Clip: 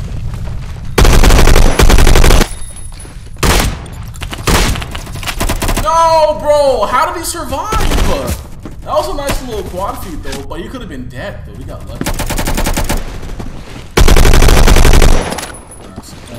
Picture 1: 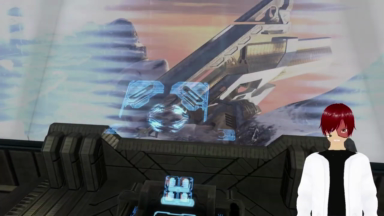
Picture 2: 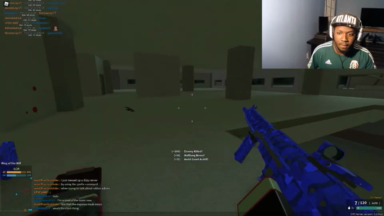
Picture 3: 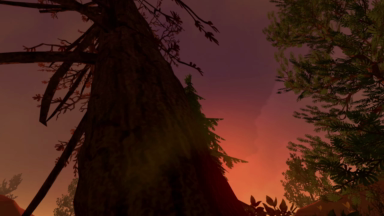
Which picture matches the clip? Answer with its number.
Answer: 2